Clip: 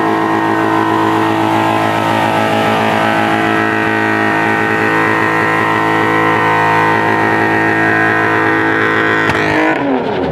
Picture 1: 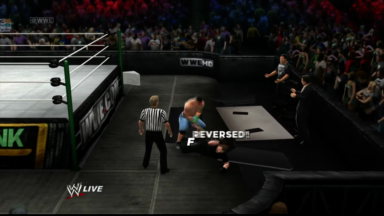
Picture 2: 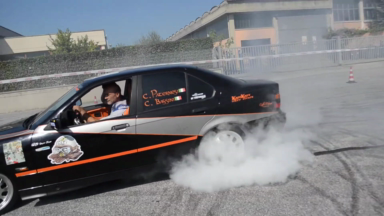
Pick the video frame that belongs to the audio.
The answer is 2